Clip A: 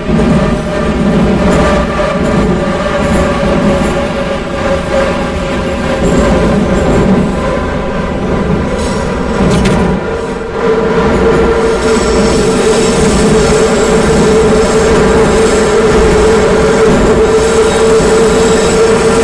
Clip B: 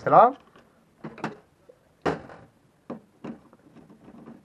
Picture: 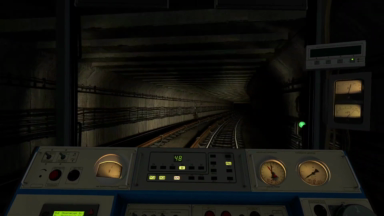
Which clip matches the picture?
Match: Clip A